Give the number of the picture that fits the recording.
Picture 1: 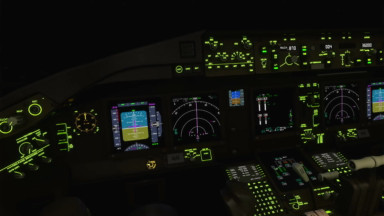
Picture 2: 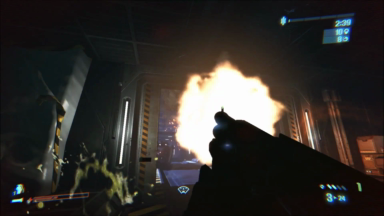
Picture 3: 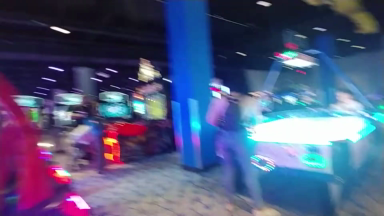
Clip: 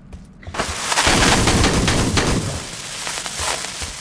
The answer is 2